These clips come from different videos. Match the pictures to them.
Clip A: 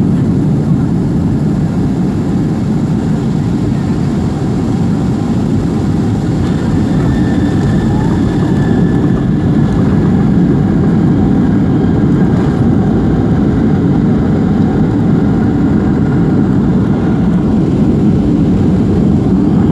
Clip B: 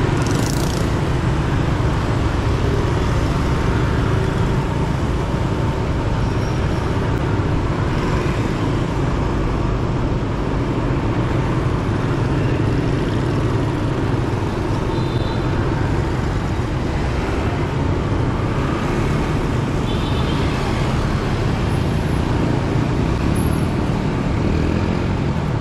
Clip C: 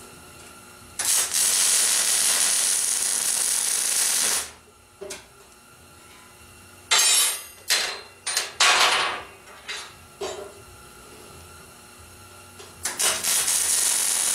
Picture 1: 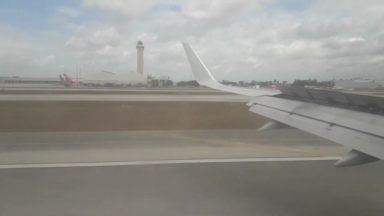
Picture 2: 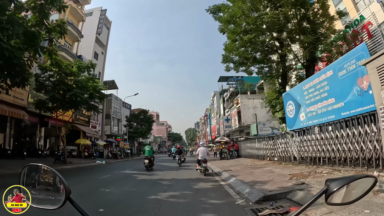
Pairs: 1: A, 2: B